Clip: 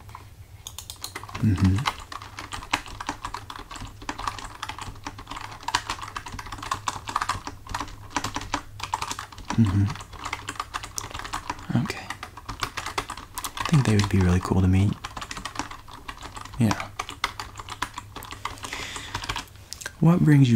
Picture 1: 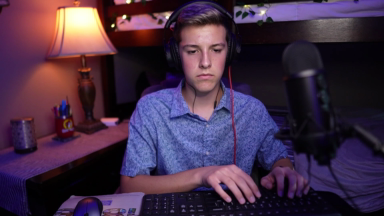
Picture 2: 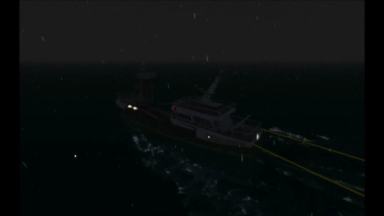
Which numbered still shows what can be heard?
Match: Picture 1